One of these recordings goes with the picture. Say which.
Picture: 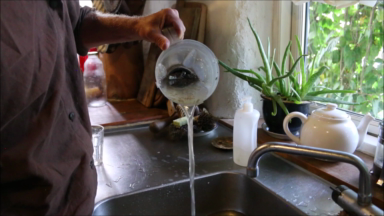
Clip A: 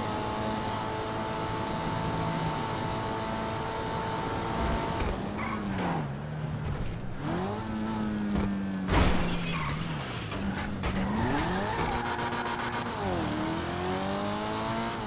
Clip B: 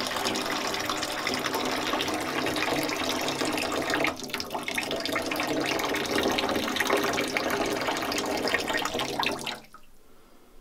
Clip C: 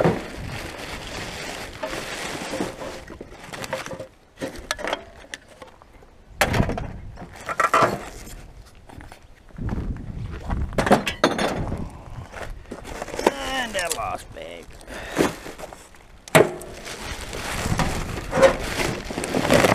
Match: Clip B